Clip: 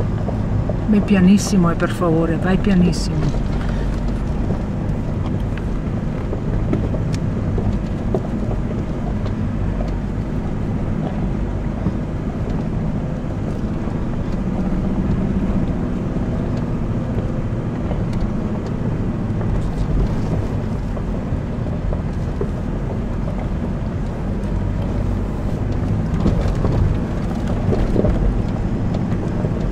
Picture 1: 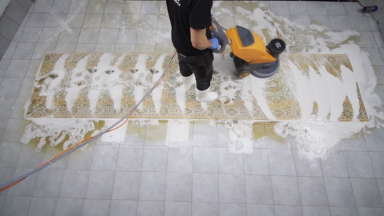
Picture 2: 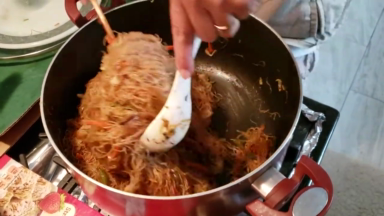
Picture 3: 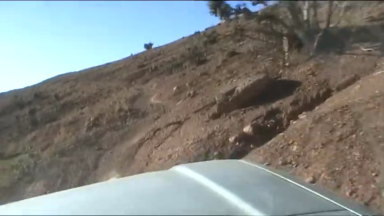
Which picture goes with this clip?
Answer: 3